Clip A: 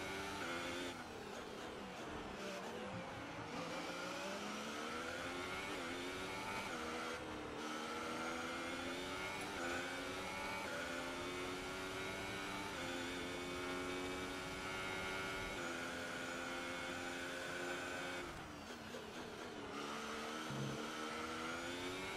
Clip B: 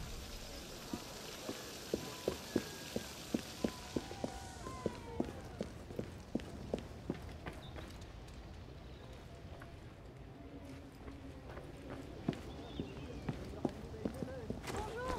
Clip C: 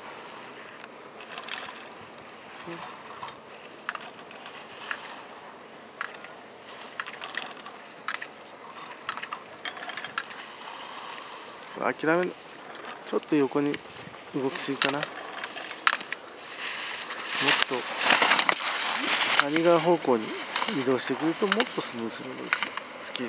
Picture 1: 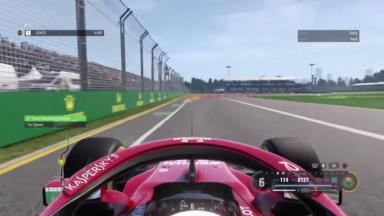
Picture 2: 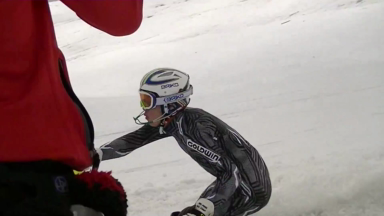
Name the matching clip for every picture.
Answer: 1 A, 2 C